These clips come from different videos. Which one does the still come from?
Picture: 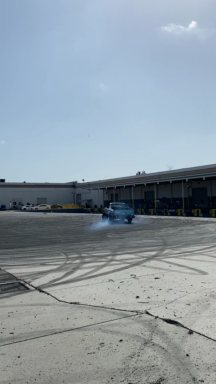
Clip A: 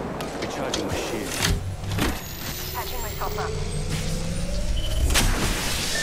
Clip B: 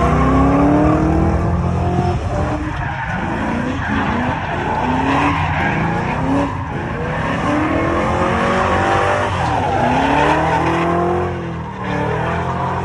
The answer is B